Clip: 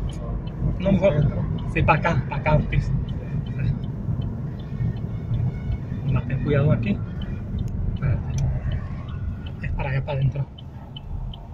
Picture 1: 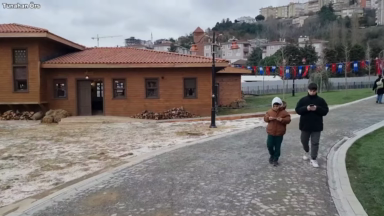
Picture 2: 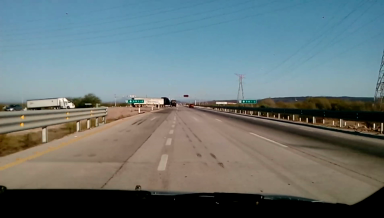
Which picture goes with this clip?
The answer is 2